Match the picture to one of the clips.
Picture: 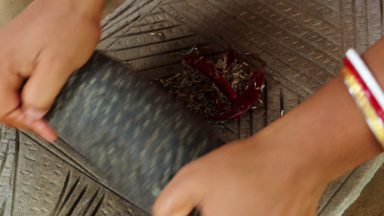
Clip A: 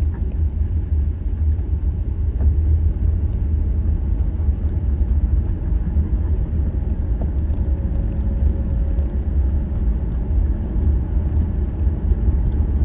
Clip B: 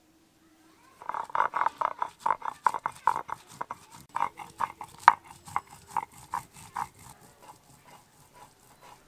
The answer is B